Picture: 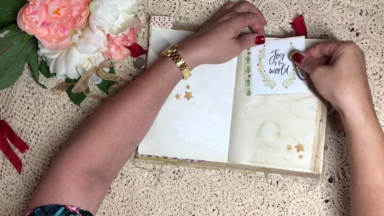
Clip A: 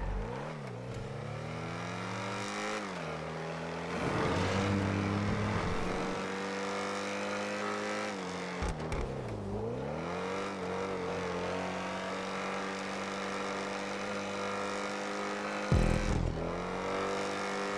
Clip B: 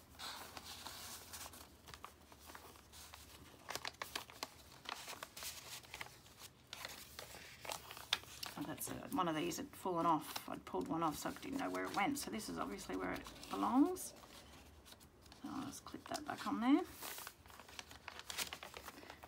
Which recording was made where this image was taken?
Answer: B